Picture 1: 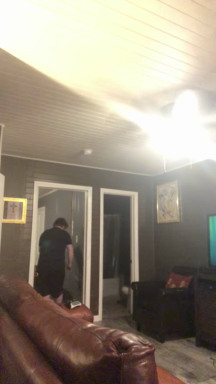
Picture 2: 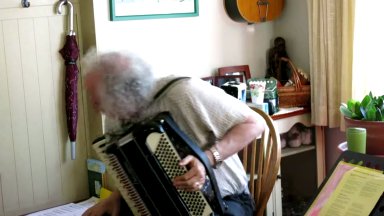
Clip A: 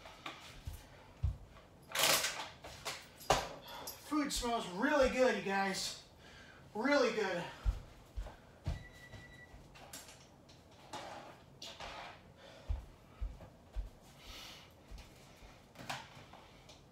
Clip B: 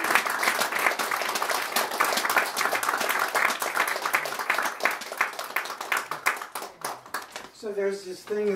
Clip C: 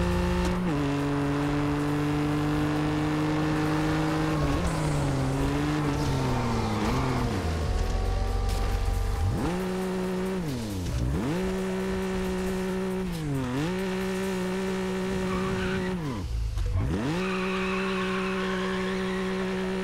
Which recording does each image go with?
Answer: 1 A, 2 B